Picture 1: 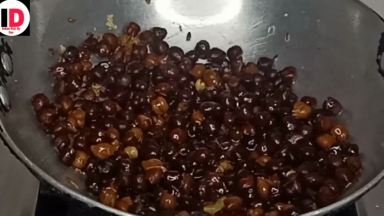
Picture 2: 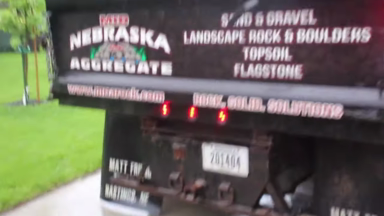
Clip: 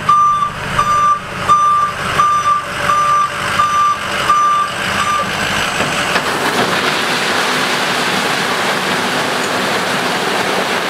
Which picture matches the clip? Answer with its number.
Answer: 2